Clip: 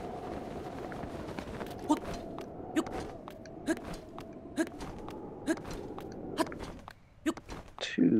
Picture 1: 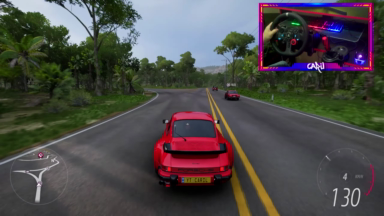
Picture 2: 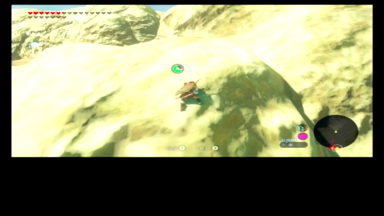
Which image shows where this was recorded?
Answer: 2